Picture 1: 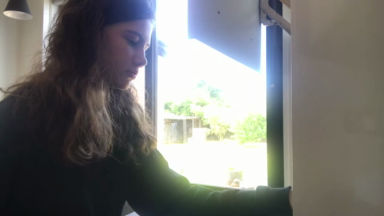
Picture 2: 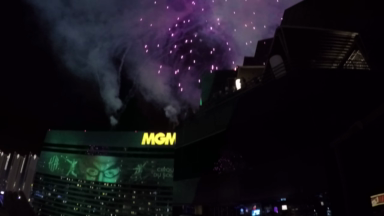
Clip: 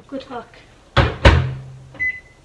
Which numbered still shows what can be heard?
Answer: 1